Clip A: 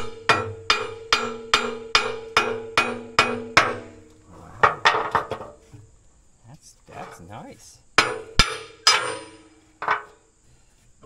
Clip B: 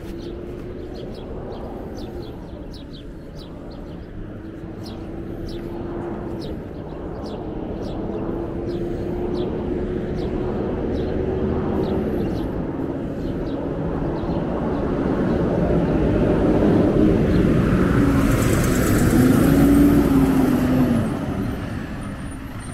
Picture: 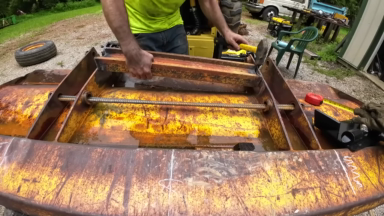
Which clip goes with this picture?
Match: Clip A